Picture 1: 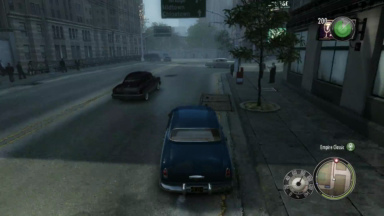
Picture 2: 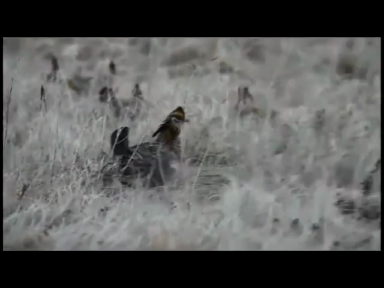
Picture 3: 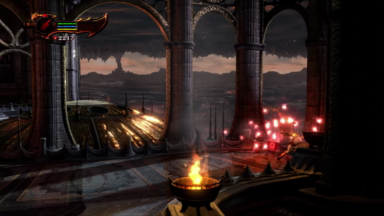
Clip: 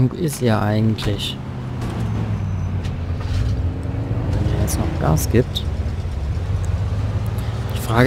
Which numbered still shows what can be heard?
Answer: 1